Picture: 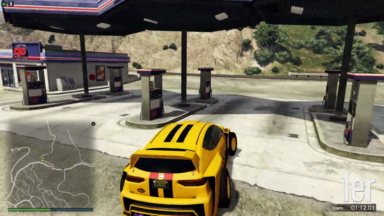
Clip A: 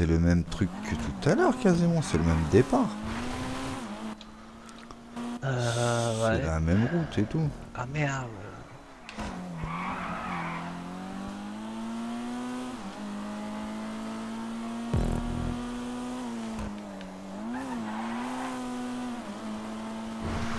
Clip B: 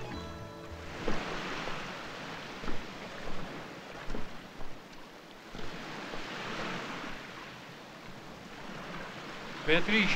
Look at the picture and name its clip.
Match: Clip A